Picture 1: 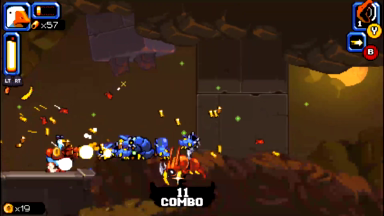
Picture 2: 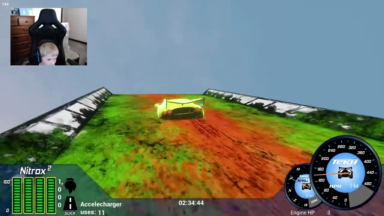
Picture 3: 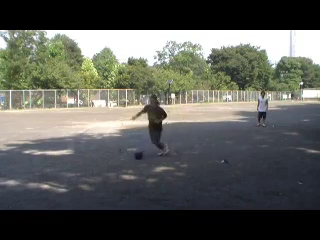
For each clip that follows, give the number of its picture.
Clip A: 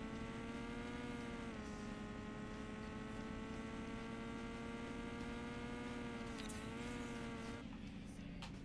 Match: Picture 2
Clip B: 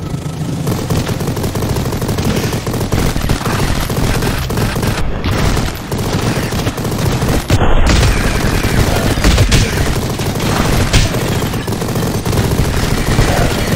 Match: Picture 1